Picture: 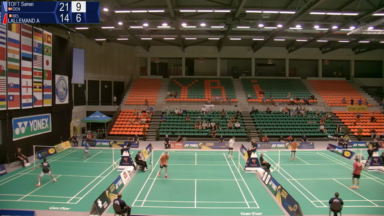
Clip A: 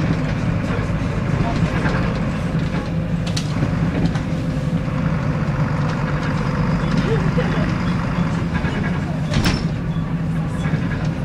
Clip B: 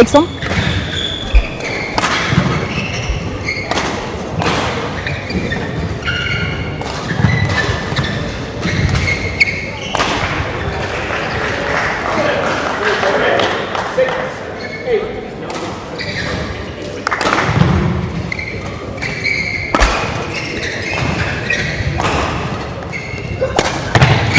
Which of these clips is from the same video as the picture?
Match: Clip B